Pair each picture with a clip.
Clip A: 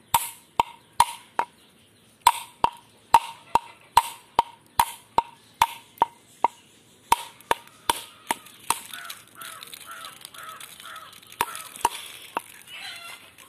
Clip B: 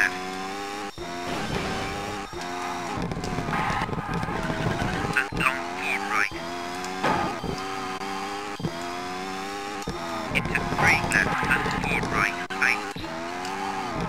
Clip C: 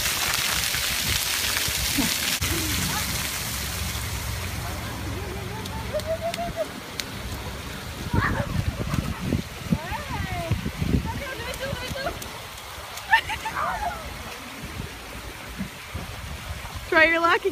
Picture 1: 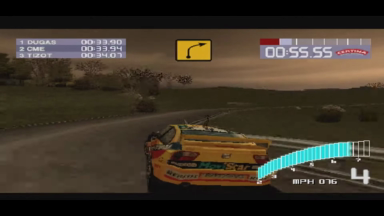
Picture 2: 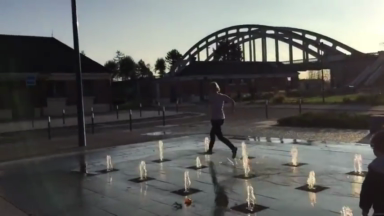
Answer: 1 B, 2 C